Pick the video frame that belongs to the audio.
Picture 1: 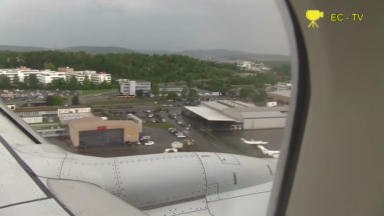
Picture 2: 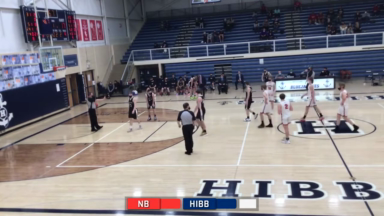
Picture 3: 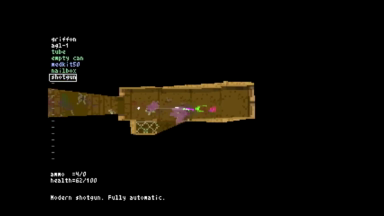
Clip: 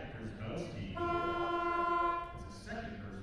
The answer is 2